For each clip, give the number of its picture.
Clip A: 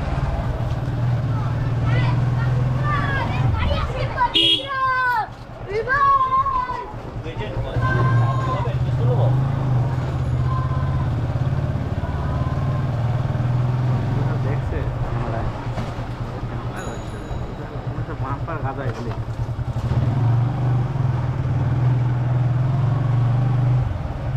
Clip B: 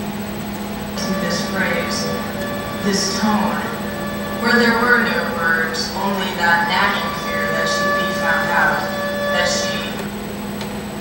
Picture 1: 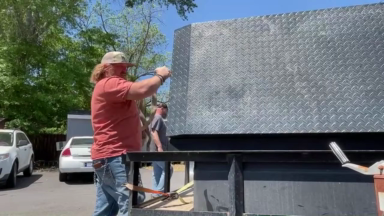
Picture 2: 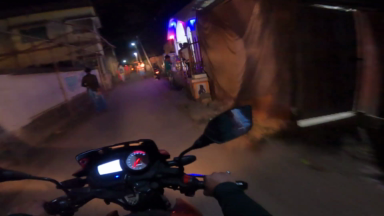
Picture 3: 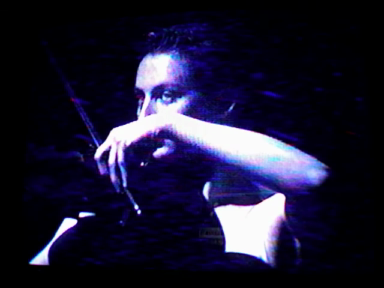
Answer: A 2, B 3